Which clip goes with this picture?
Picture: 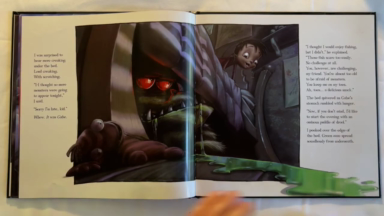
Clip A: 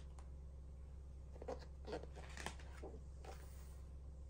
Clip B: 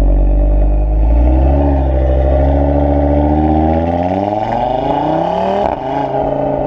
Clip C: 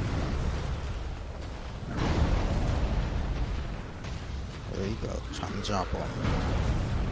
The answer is A